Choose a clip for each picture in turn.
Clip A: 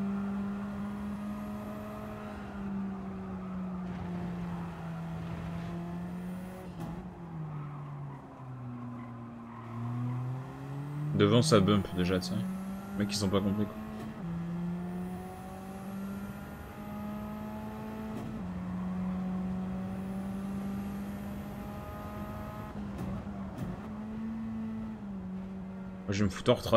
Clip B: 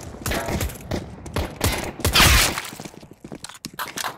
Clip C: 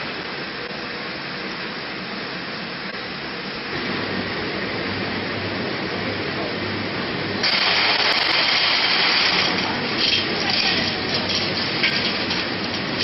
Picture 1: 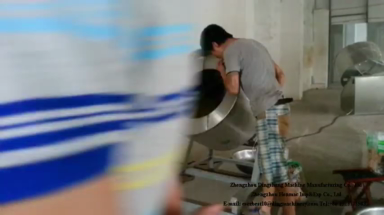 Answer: C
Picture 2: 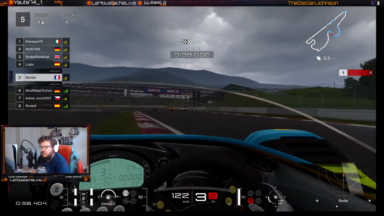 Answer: A